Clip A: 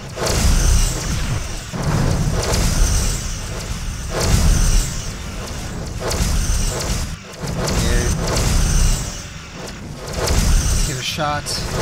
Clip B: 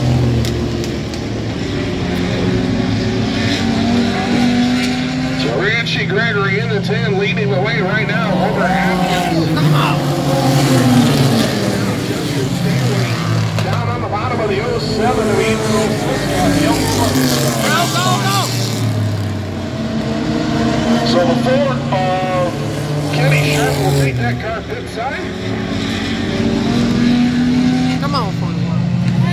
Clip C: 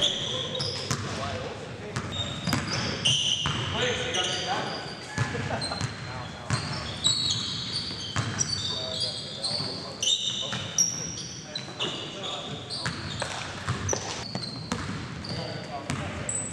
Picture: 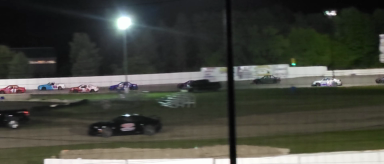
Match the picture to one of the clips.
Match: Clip B